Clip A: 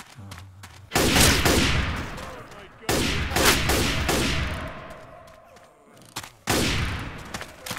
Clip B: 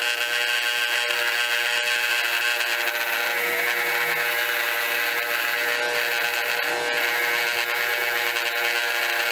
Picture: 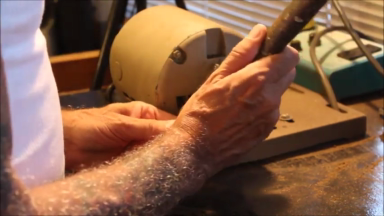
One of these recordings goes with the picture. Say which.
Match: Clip B